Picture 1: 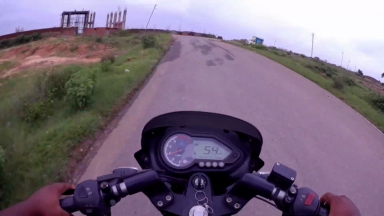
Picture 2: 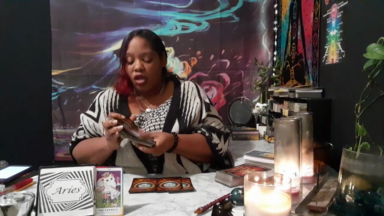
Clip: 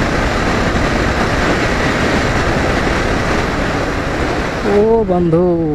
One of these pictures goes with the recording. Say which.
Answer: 1